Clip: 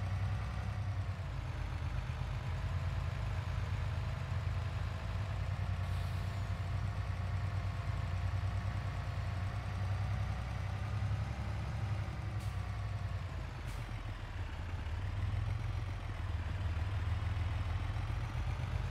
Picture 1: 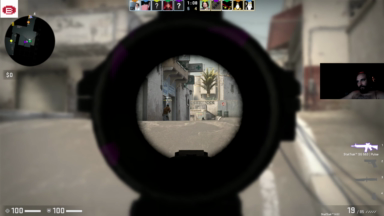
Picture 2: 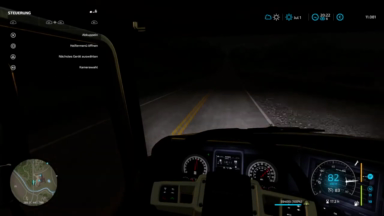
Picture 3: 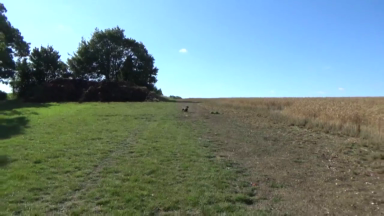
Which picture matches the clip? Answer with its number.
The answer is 2